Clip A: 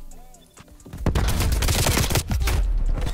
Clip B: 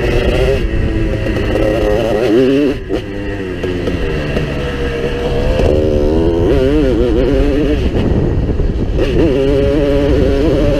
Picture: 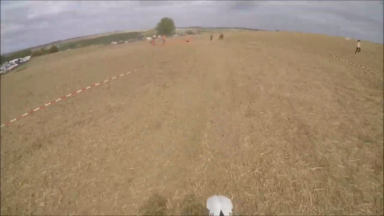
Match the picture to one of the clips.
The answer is B